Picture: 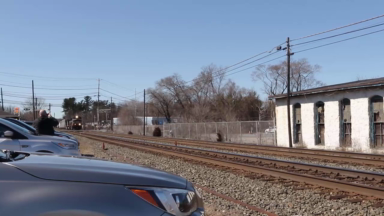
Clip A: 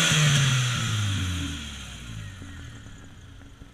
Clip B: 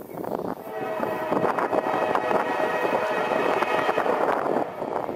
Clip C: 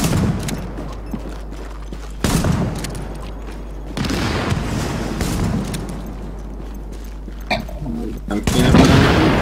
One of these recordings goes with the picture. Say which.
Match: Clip B